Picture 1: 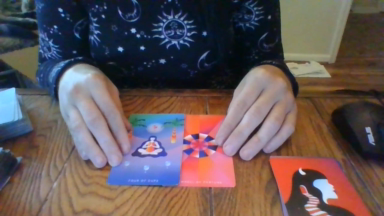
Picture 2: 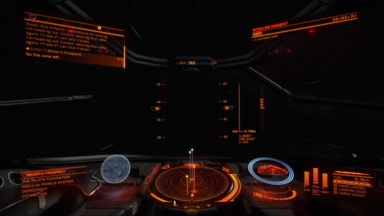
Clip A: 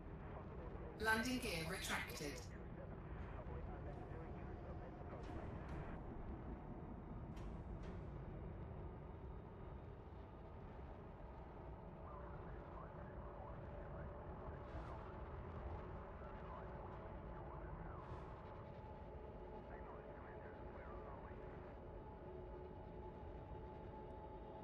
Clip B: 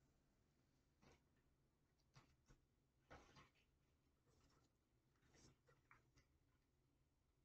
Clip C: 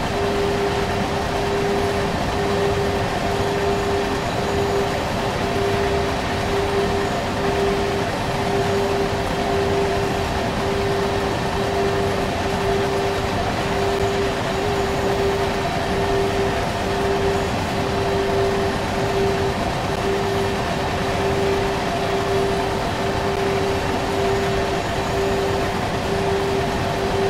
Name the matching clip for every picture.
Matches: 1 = B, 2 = A